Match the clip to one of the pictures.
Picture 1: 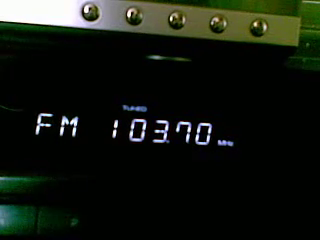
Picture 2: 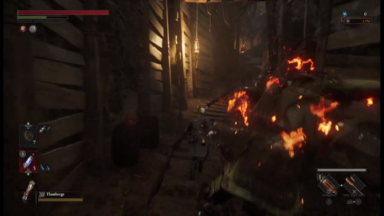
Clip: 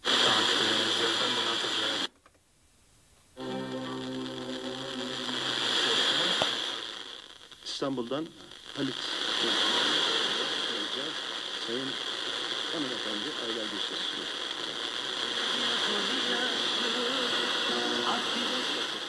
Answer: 1